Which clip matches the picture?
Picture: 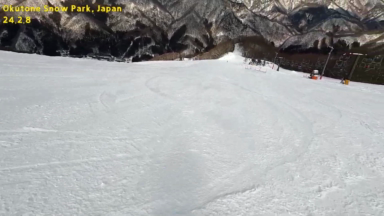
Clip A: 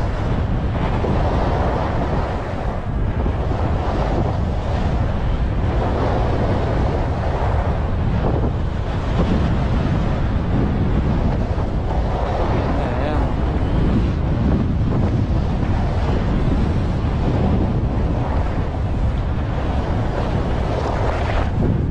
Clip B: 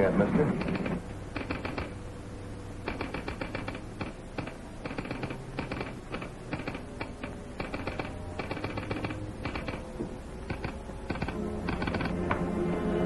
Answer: A